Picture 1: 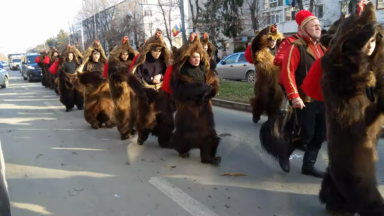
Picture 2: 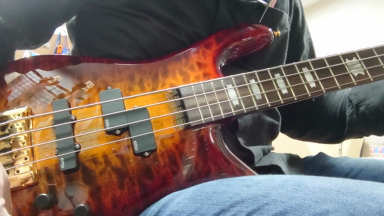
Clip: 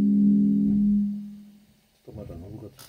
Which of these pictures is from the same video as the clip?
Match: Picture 2